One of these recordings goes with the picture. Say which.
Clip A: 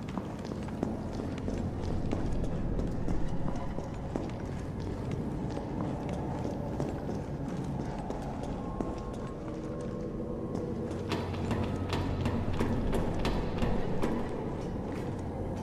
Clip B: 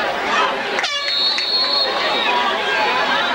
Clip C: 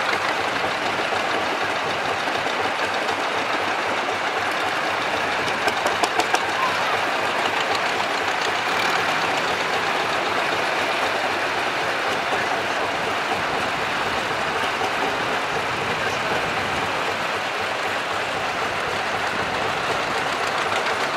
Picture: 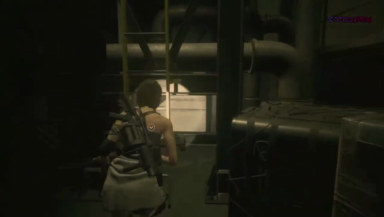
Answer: A